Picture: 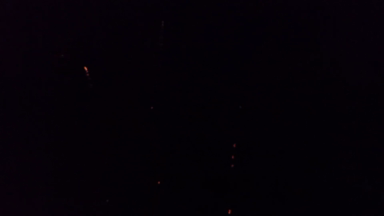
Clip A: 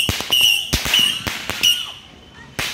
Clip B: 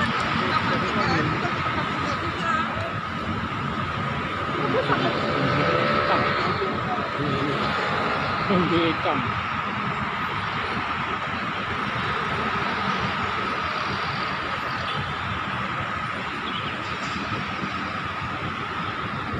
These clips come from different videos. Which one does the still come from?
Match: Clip A